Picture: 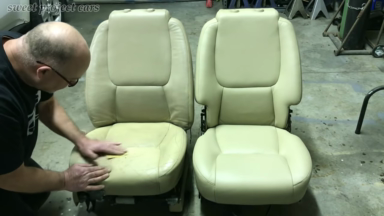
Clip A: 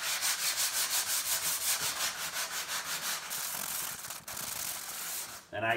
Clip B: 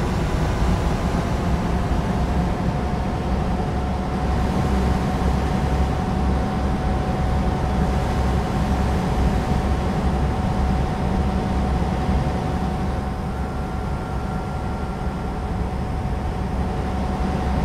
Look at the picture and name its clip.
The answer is A